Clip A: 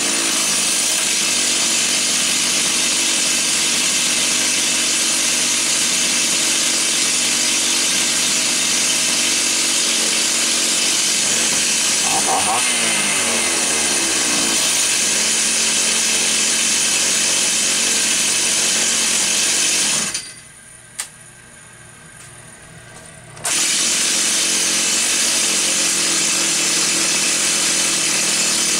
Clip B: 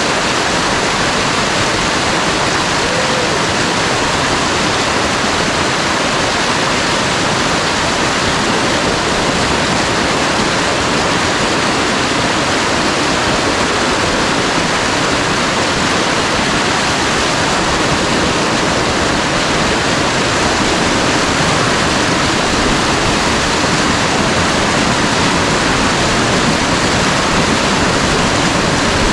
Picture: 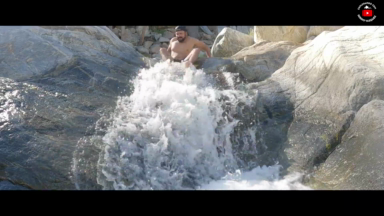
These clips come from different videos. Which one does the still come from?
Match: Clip B